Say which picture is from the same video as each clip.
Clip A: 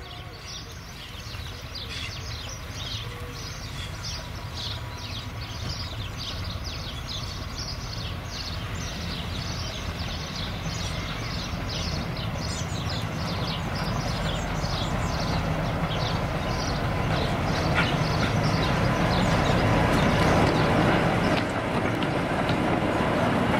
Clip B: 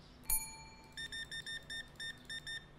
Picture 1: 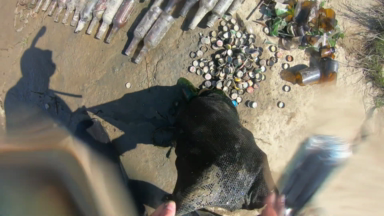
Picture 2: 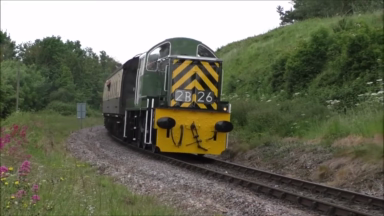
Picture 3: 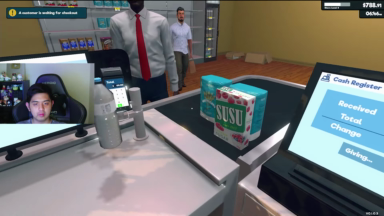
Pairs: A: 2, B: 3